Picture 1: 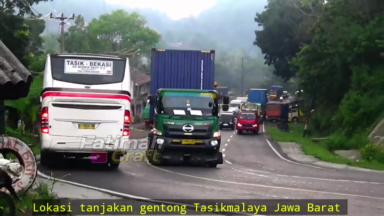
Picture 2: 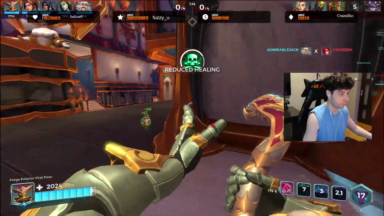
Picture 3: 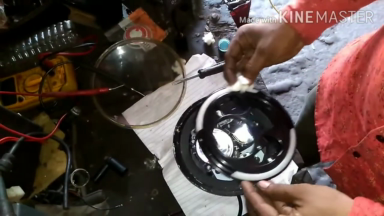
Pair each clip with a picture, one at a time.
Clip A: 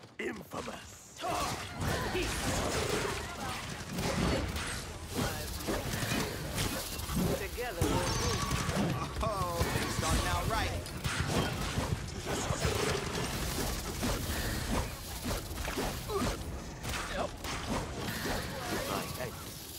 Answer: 2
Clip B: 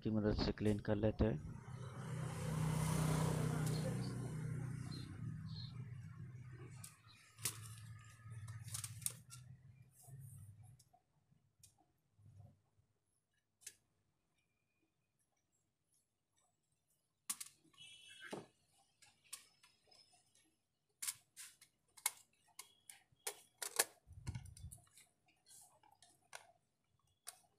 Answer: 3